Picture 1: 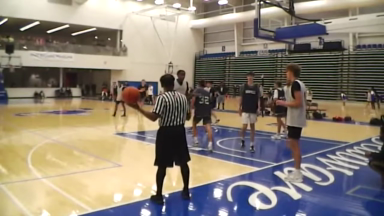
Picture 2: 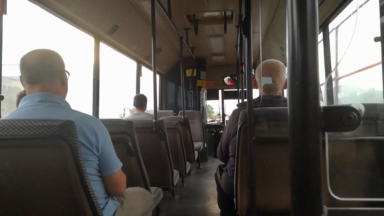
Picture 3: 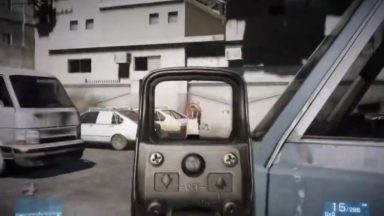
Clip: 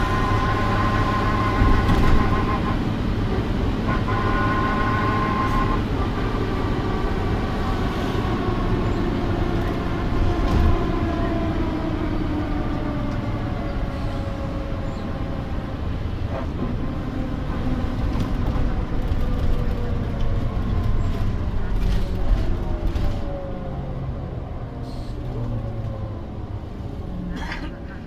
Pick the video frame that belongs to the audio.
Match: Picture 2